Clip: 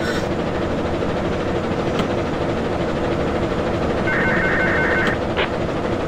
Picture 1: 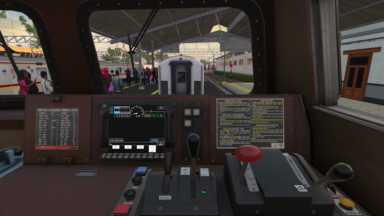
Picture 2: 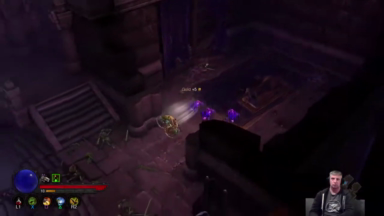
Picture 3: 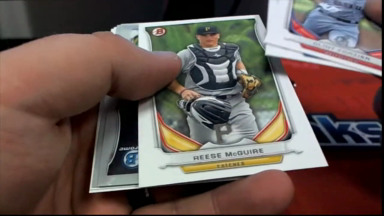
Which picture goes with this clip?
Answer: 1